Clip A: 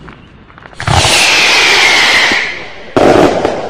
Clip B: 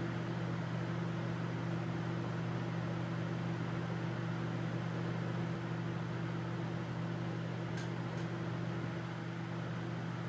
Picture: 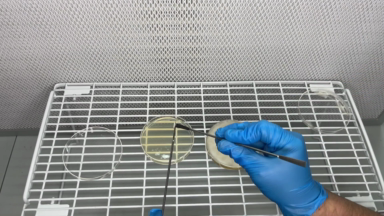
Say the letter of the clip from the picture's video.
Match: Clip B